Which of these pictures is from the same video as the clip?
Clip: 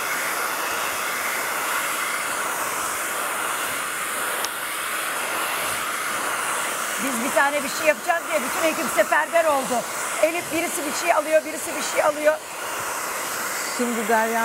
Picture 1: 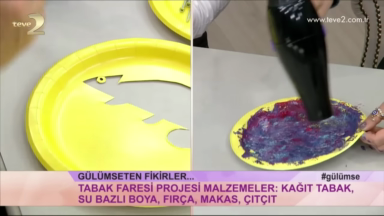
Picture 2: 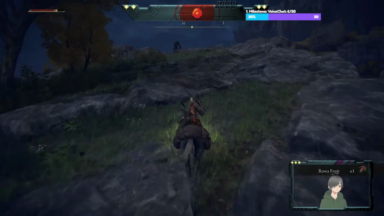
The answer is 1